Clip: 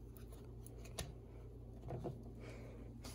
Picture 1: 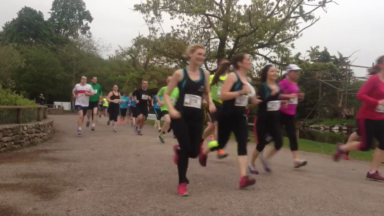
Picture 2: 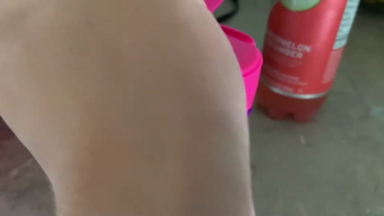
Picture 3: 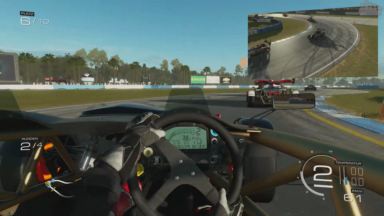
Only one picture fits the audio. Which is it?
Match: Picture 2